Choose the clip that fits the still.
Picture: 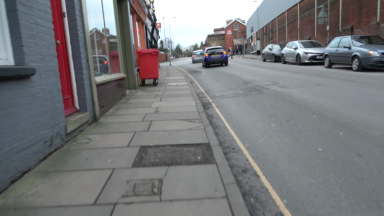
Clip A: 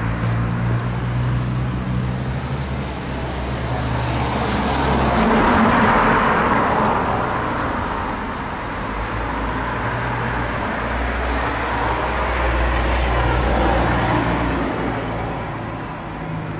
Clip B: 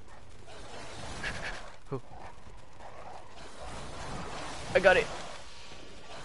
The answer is A